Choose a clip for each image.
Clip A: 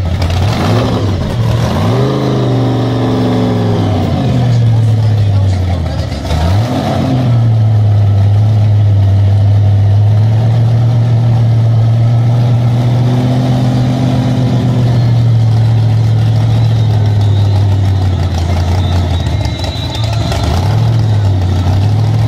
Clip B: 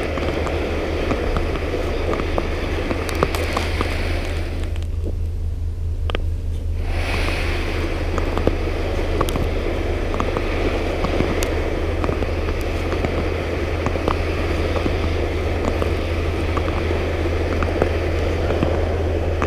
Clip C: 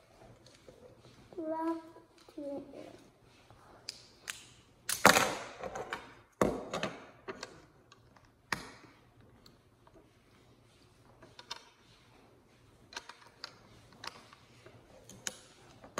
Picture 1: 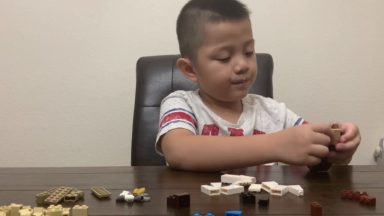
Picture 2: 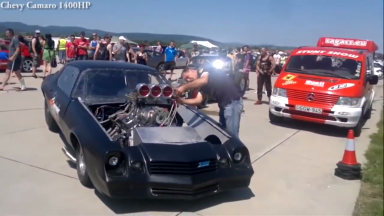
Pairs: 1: C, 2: A